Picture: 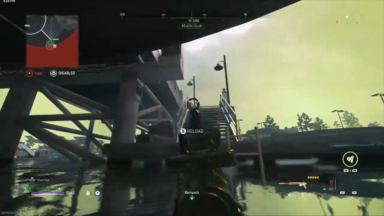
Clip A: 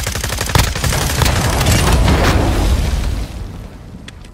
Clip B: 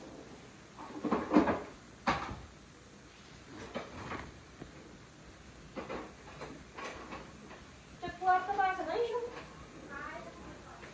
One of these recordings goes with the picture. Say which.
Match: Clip A